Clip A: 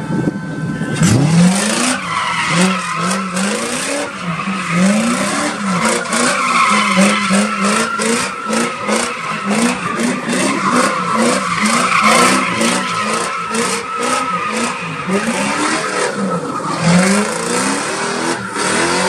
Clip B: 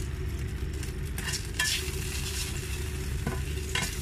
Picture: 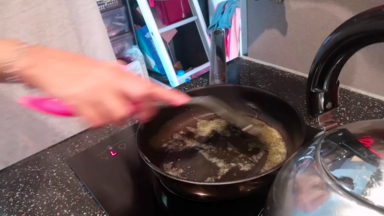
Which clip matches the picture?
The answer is B